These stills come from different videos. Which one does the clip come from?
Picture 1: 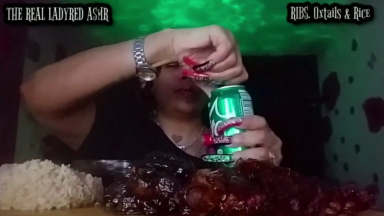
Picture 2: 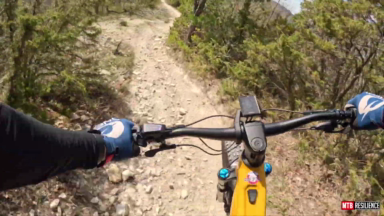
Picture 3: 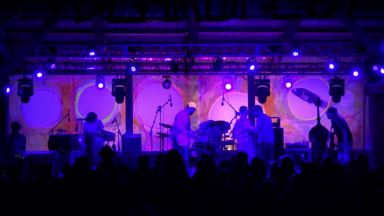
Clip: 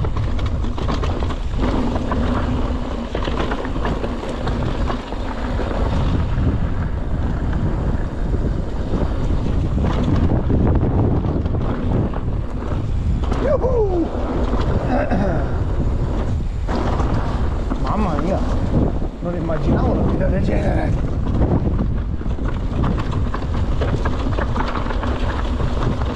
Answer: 2